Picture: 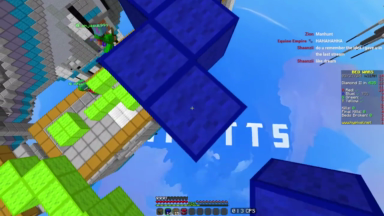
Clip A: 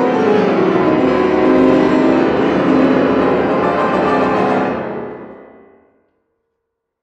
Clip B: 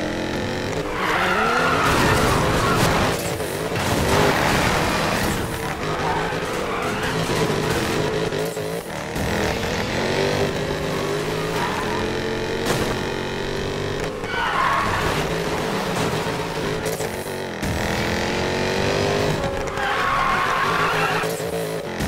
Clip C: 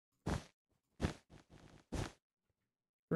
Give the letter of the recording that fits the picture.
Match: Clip C